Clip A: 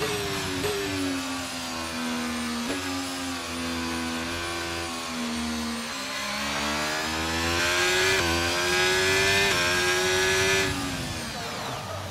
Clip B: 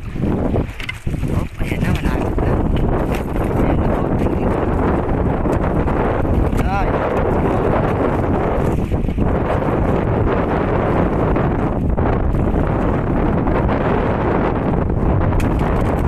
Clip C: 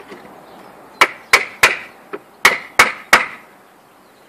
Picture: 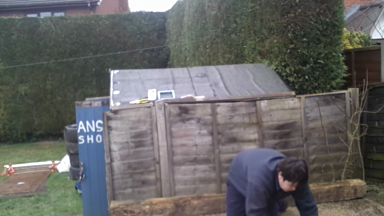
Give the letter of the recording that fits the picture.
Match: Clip C